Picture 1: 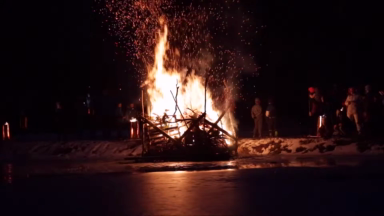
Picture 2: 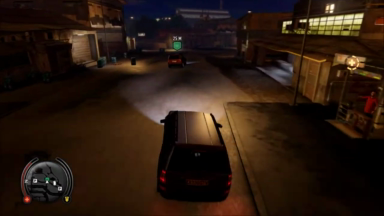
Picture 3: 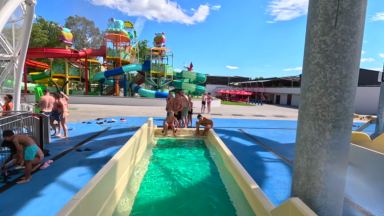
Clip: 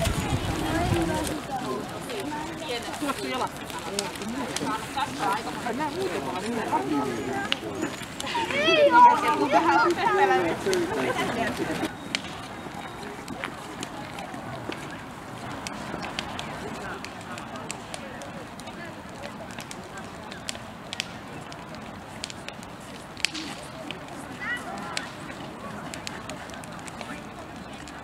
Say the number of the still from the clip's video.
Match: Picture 1